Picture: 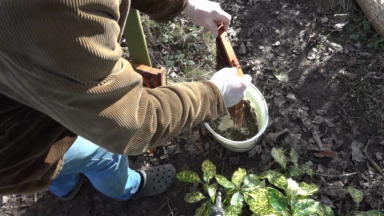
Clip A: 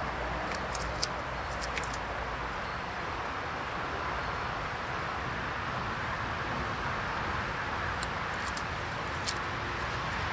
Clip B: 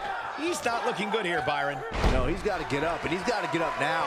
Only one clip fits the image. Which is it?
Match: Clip A